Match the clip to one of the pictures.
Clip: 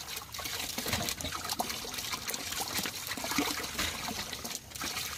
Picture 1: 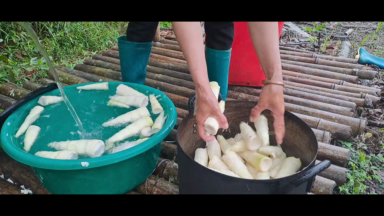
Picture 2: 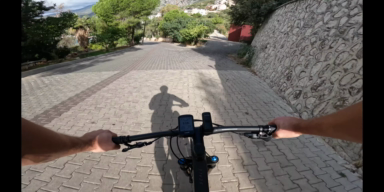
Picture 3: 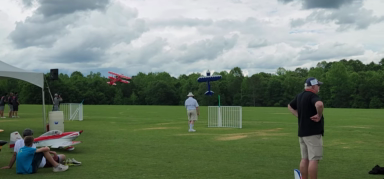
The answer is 1